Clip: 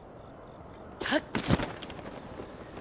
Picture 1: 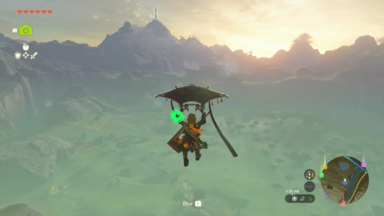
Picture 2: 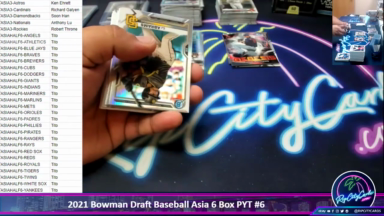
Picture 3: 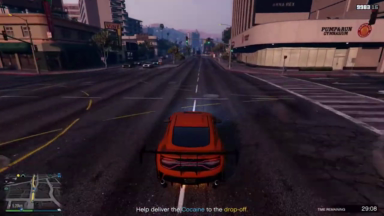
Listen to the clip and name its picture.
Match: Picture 1